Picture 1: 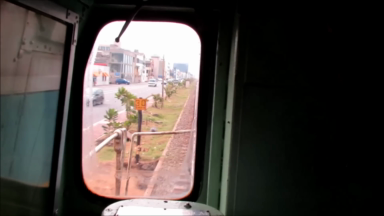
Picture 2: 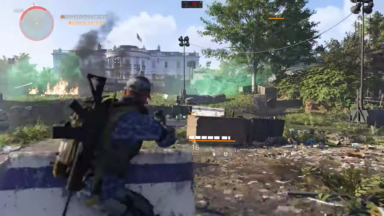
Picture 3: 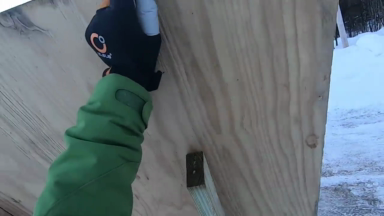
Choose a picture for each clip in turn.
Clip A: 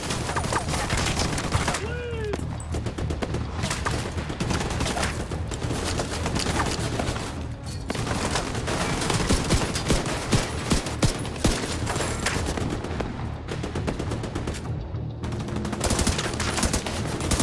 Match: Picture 2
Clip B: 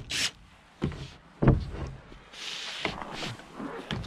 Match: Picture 3